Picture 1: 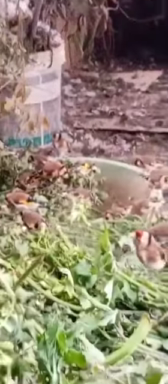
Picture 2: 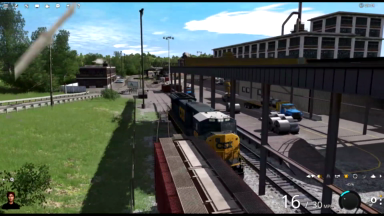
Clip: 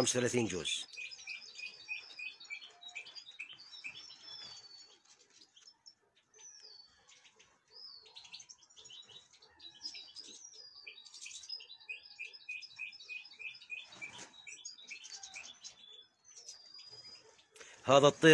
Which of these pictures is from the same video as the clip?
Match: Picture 1